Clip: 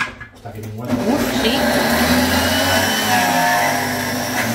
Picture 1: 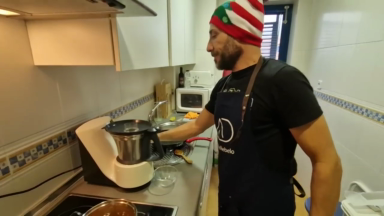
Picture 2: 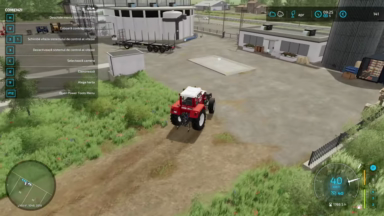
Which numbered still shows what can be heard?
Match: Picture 1